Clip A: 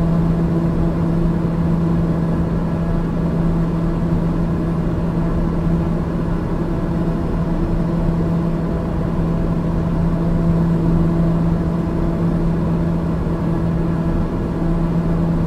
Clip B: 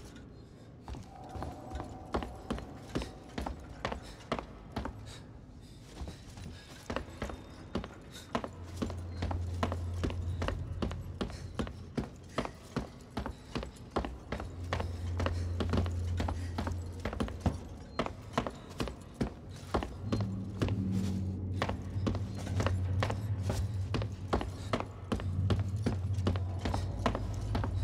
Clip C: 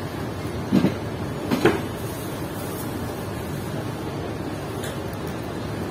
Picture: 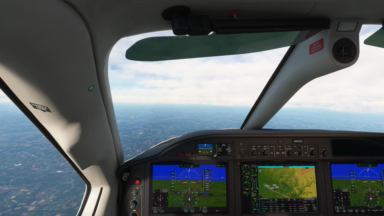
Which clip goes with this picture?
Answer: A